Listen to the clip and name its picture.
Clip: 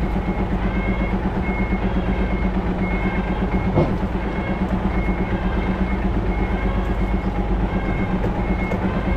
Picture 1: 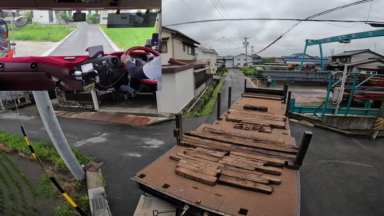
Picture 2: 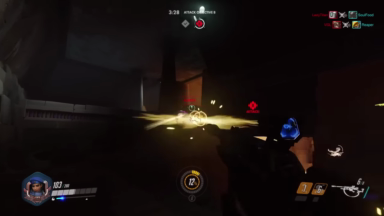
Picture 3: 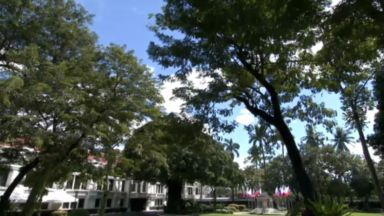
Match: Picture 1